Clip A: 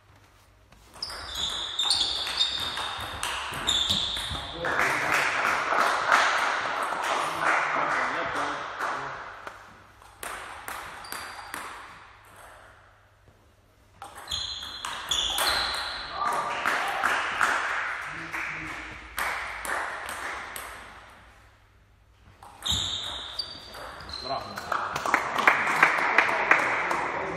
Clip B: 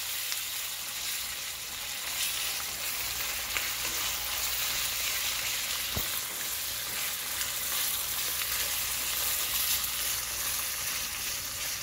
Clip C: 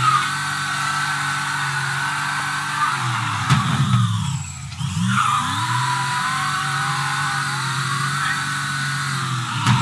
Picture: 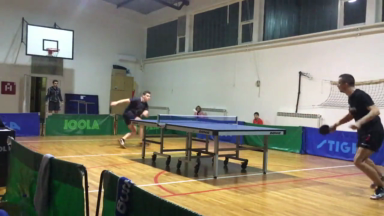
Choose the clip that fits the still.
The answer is A